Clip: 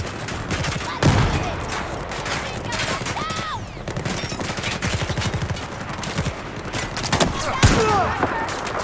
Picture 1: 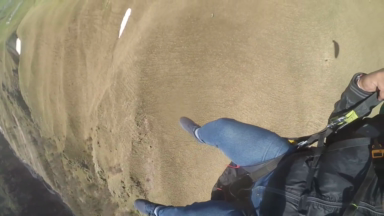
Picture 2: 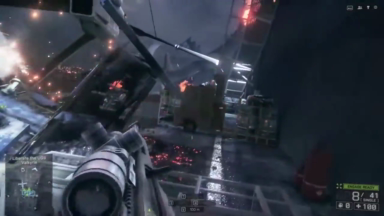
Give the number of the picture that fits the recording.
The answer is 2